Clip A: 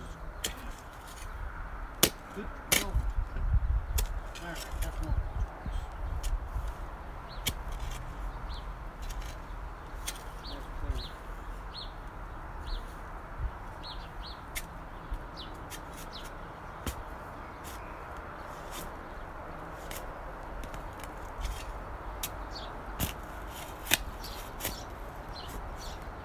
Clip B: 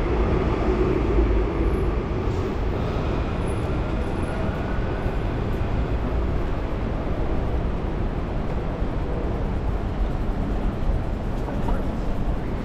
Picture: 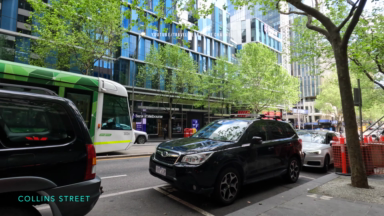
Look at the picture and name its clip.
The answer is B